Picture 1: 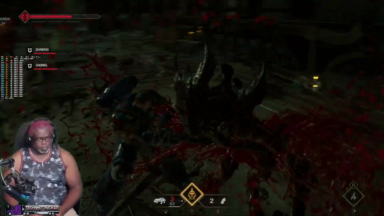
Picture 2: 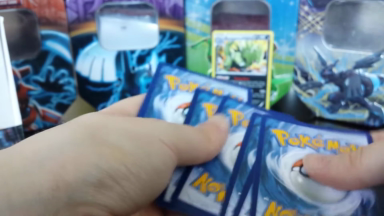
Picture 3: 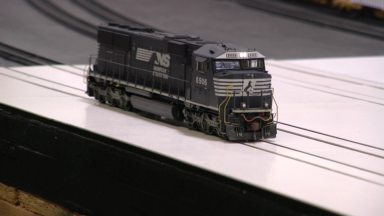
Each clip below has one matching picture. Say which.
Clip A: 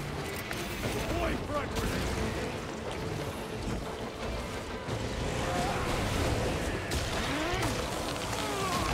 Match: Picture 1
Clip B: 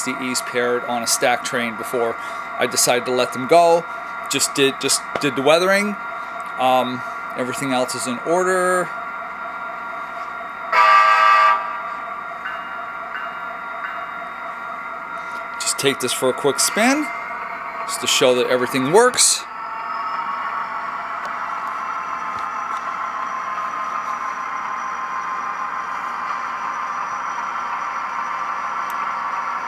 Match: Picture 3